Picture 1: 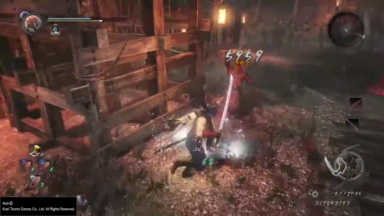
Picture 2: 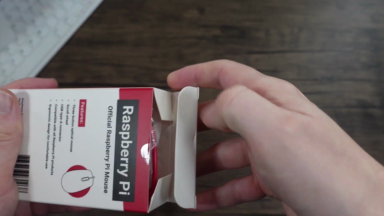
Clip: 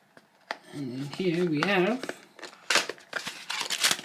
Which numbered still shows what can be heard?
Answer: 2